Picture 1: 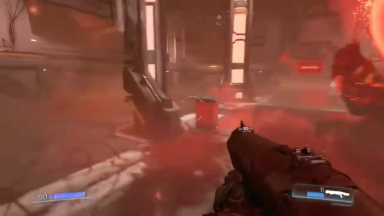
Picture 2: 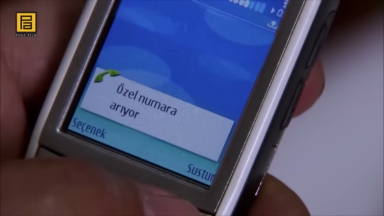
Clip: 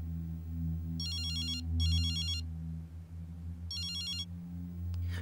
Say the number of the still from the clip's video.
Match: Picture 2